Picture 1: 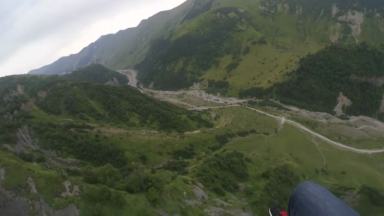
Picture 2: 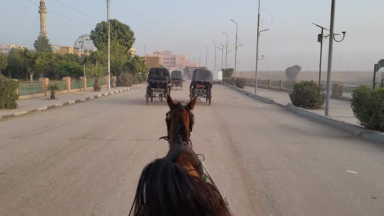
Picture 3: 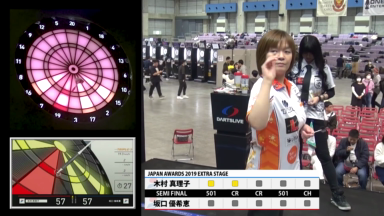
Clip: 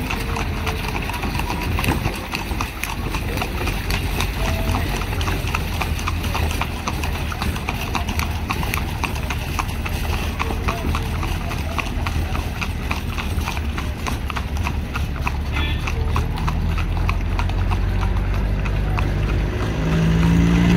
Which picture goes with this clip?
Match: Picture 2